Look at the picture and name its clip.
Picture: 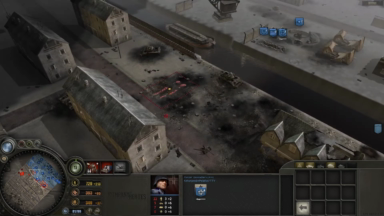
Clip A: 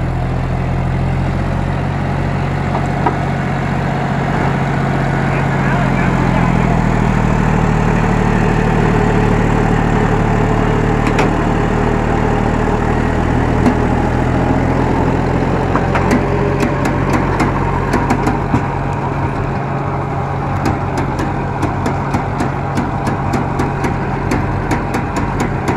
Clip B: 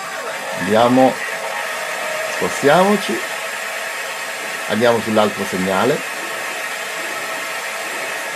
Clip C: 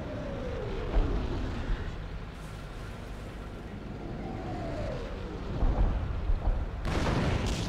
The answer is C